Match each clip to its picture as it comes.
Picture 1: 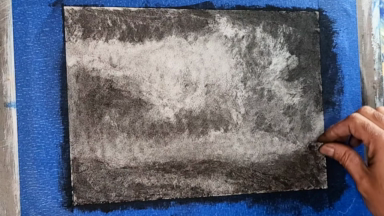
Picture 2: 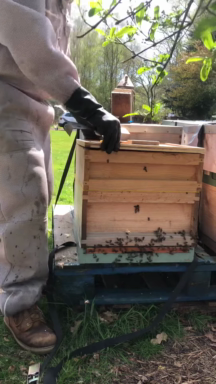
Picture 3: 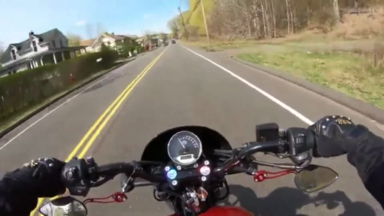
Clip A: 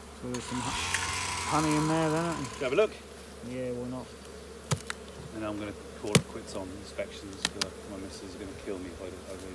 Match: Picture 2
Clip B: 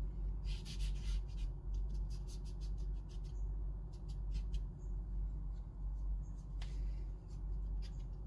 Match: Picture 1